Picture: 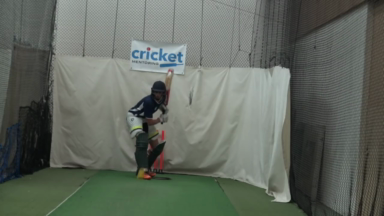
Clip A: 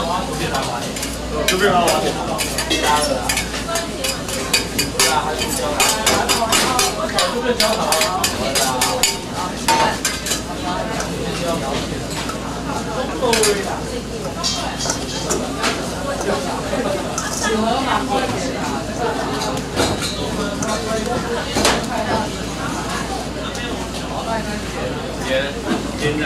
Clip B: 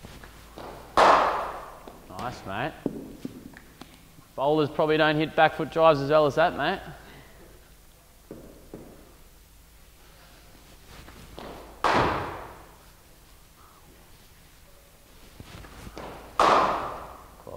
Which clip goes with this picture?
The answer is B